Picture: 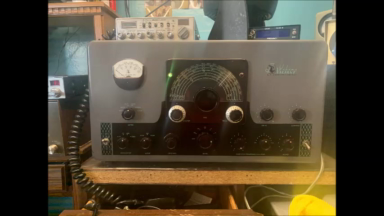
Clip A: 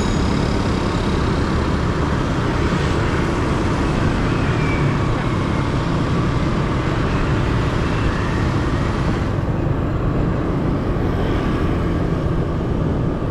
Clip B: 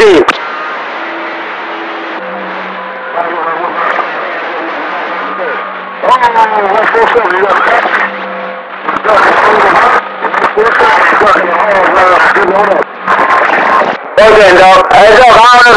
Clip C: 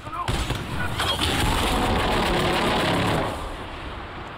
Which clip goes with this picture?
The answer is B